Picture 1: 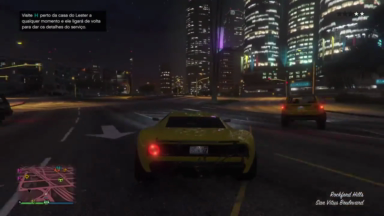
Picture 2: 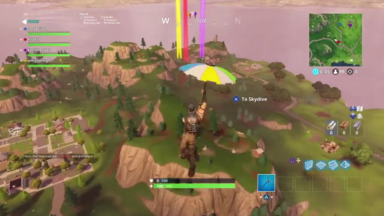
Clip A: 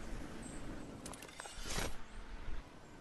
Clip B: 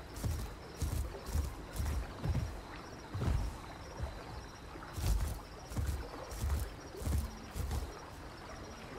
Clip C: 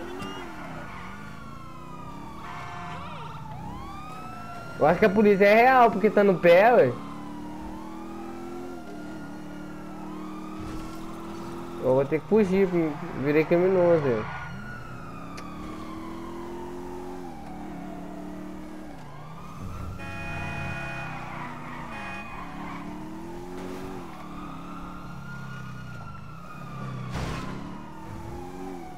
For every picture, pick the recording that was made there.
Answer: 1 C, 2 A